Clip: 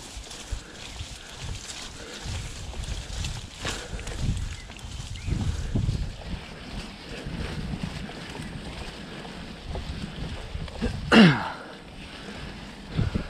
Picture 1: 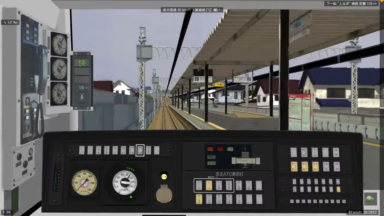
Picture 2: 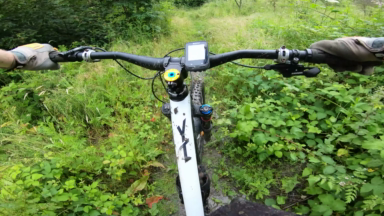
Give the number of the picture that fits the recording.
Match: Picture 2